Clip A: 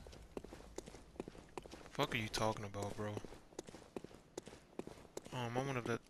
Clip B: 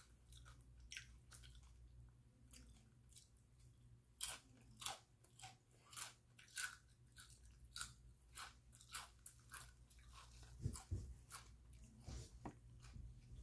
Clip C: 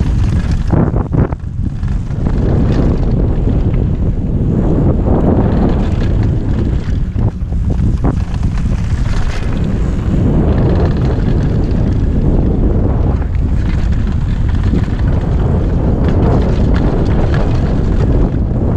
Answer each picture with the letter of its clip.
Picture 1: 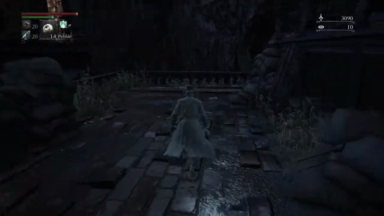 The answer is A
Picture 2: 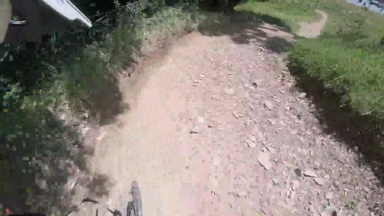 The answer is C